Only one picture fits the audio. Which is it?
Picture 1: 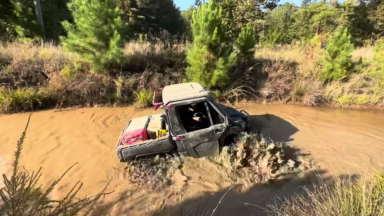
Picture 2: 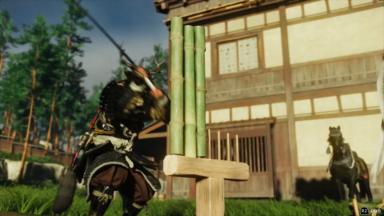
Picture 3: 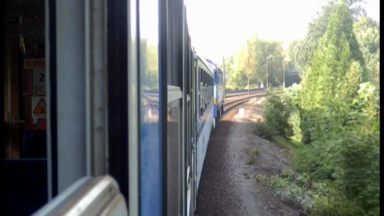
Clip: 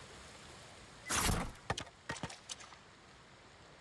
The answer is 2